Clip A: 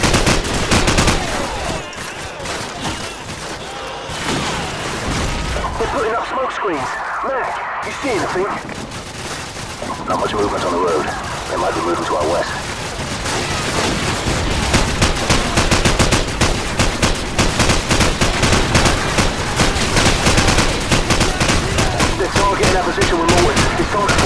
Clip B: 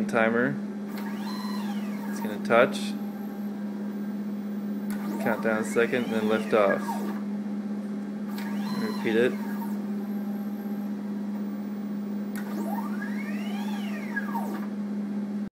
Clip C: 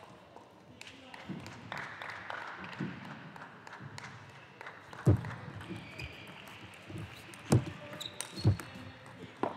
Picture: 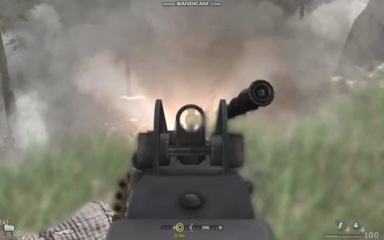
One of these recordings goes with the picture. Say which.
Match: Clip A